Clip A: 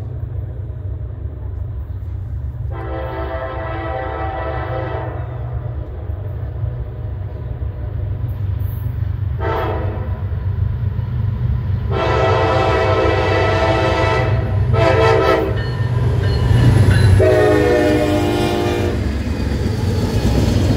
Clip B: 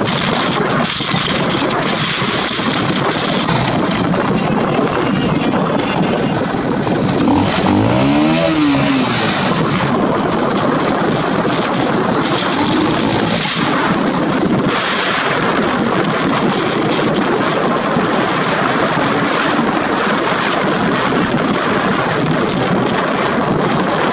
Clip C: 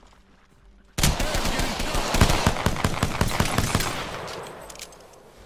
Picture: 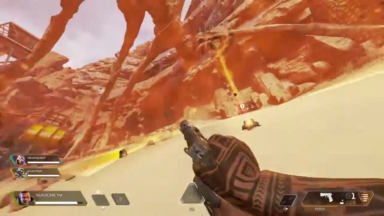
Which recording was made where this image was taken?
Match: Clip C